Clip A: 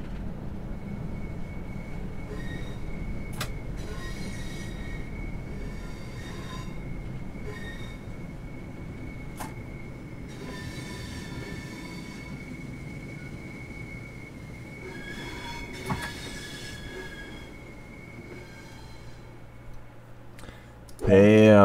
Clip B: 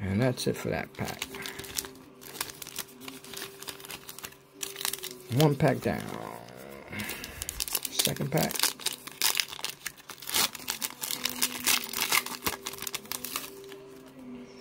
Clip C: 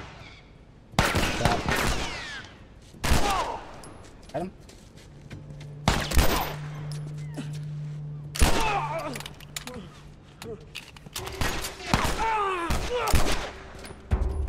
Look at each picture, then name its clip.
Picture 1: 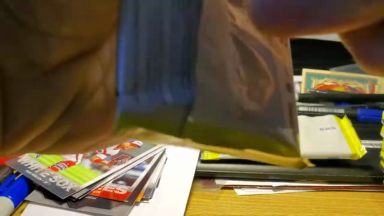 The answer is B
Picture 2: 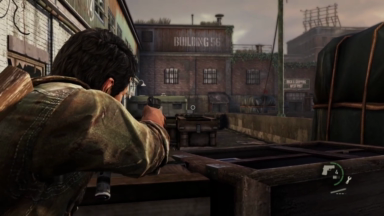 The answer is C